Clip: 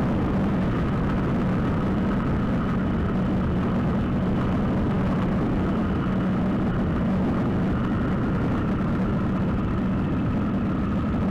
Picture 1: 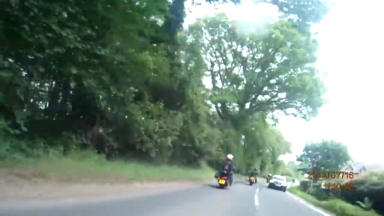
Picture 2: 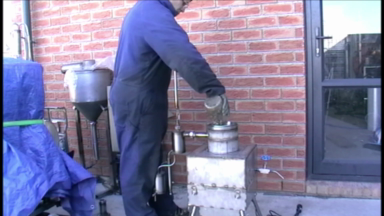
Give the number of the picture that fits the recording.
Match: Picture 1